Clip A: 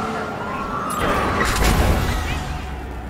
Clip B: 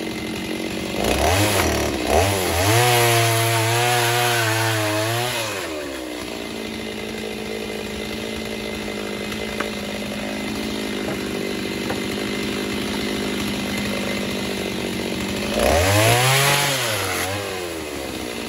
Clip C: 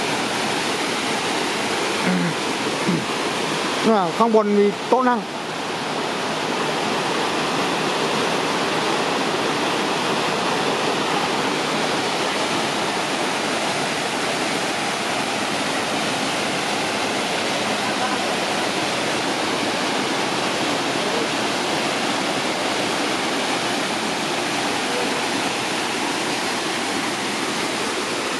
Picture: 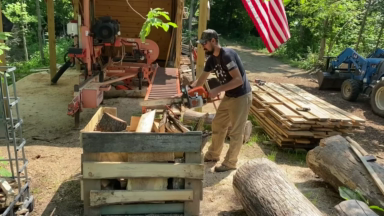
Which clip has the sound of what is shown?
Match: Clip B